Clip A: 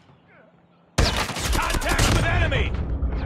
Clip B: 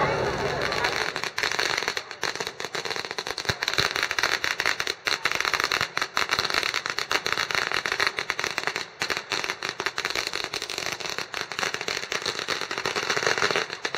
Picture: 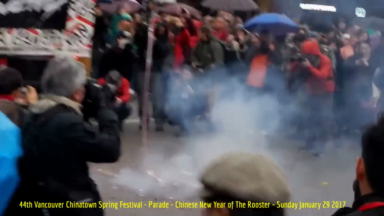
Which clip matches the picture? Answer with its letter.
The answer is B